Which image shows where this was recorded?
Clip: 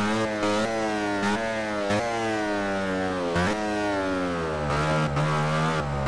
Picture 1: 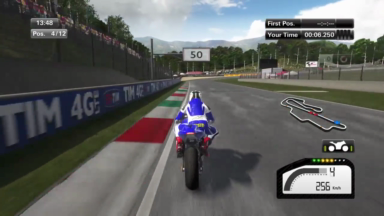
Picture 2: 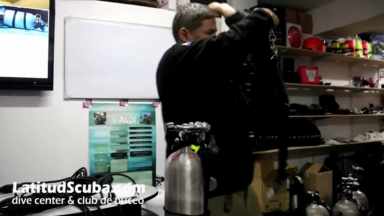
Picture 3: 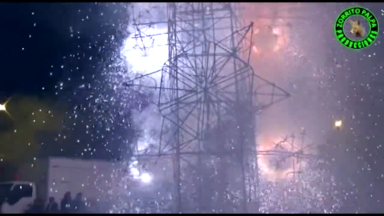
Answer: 1